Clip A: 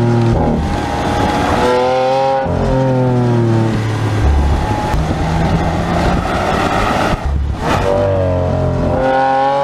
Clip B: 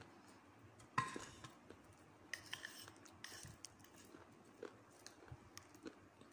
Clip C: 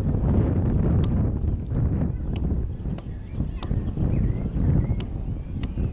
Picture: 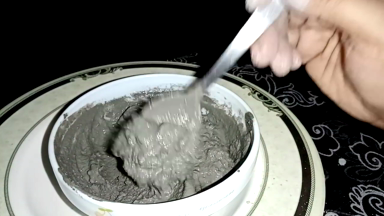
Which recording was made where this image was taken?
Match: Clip B